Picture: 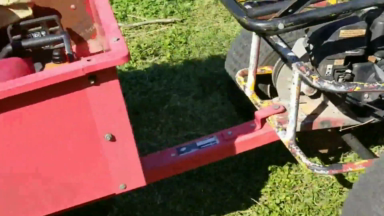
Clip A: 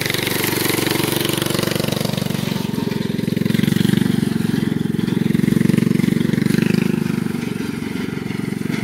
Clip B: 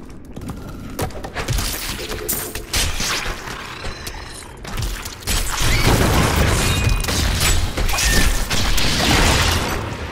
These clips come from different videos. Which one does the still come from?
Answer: A